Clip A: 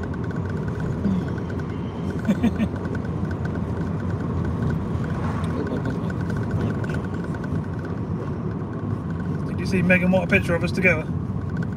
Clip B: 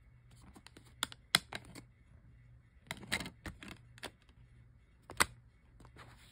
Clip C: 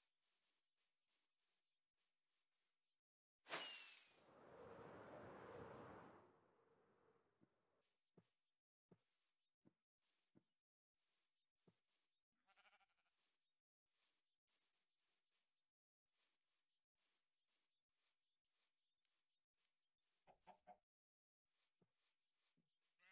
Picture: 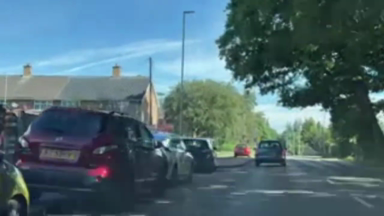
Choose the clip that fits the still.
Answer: A